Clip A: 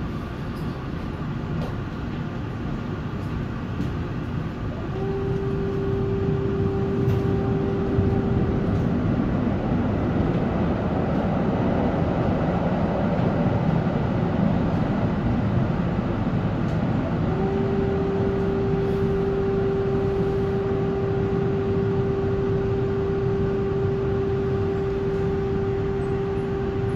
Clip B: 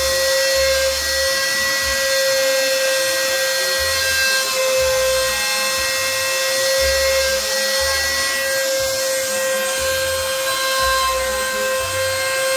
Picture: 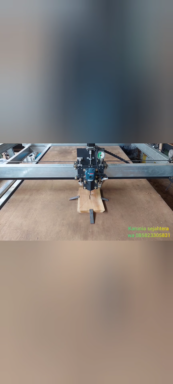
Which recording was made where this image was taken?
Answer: B